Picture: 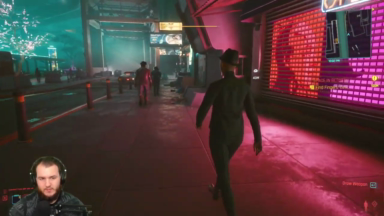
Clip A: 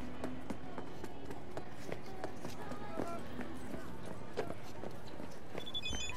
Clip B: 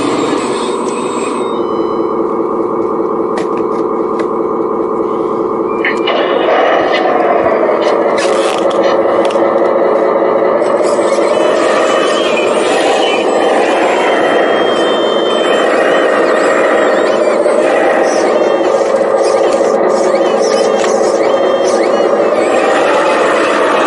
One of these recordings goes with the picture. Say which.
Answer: A